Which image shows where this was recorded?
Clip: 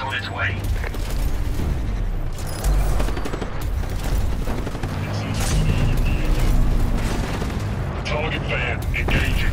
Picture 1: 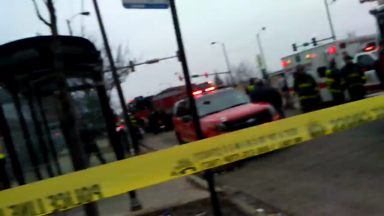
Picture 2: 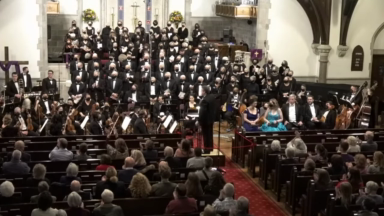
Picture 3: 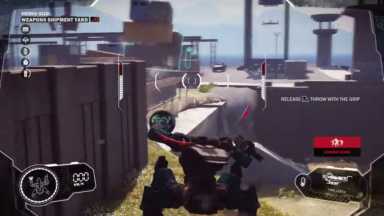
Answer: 3